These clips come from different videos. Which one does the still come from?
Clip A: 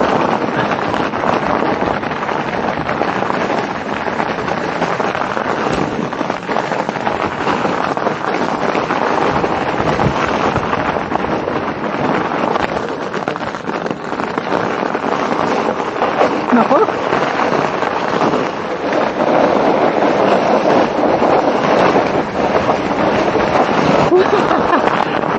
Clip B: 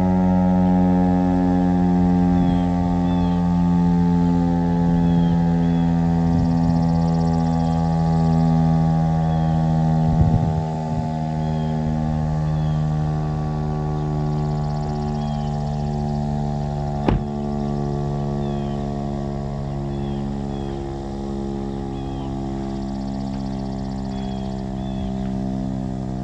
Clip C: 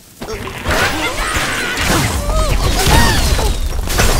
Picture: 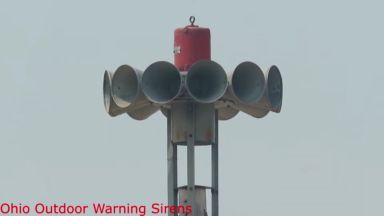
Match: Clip B